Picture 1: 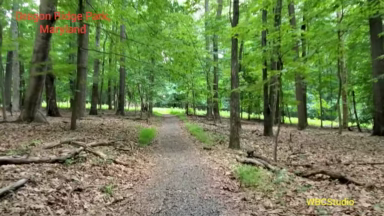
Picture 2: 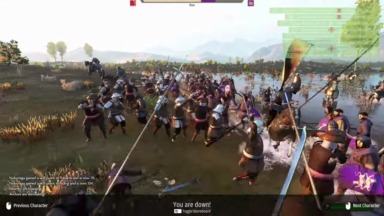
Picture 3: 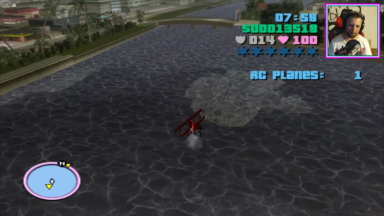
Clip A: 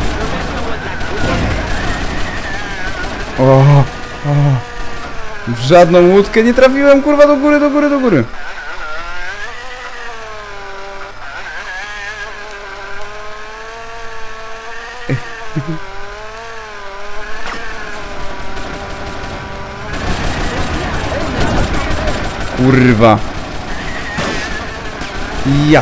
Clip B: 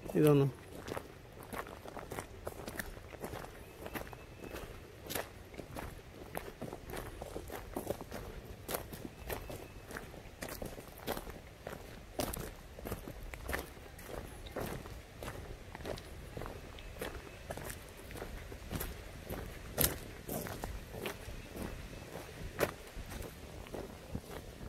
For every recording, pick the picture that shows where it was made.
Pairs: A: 3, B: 1